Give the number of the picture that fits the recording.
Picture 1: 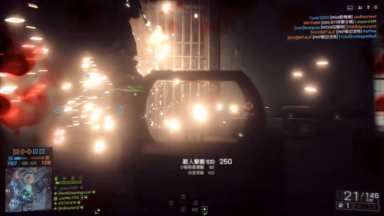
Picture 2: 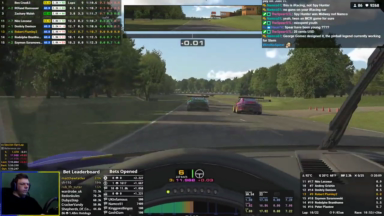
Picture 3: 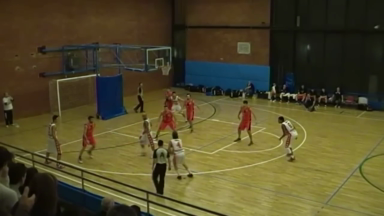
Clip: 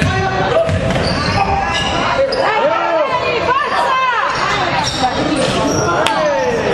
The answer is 3